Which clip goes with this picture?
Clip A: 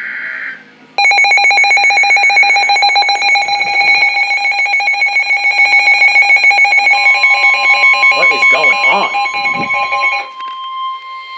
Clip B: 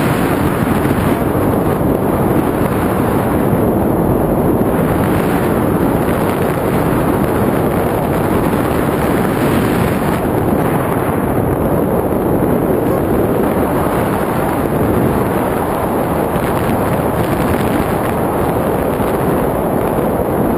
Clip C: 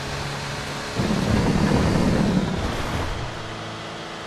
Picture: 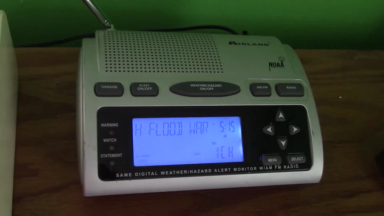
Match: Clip A